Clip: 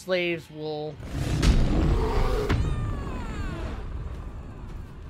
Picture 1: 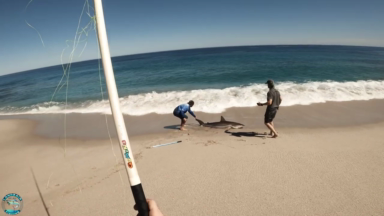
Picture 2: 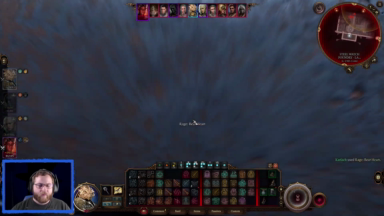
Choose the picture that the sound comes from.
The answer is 2